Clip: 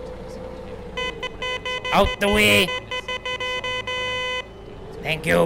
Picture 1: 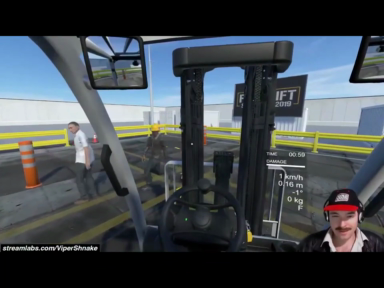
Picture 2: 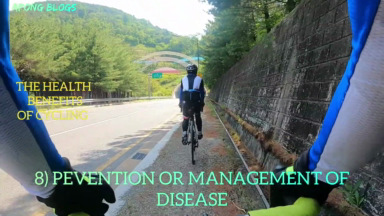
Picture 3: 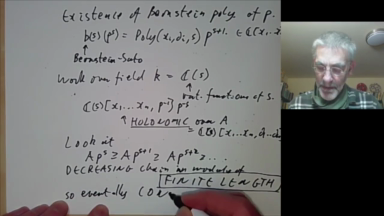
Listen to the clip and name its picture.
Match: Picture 1